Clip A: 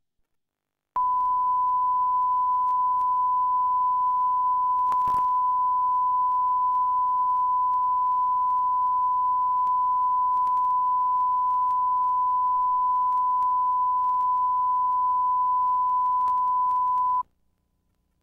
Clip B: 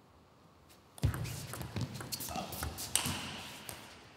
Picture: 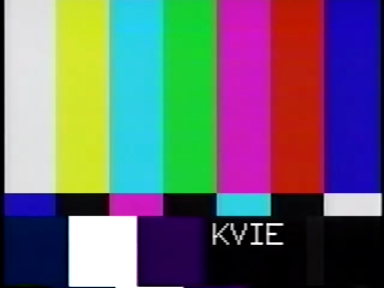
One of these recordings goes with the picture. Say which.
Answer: A